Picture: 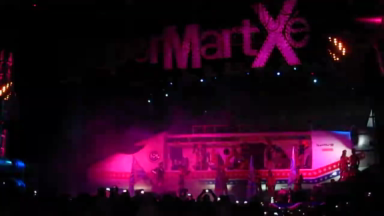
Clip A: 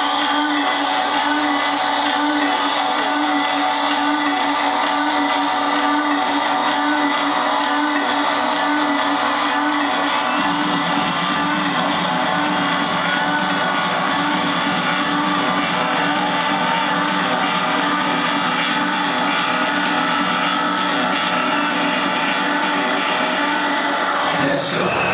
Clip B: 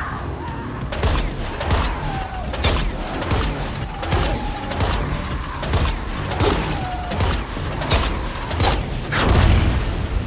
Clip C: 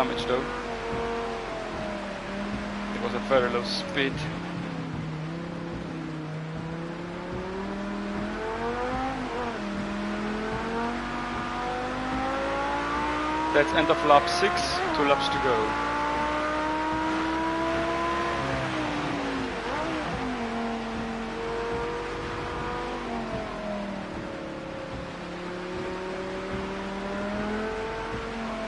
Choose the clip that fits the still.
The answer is A